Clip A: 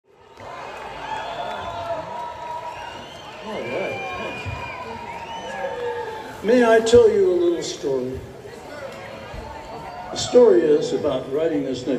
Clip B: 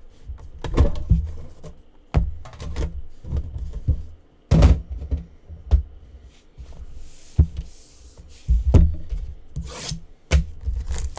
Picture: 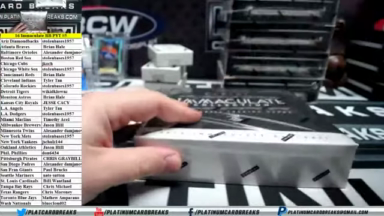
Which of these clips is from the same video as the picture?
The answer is B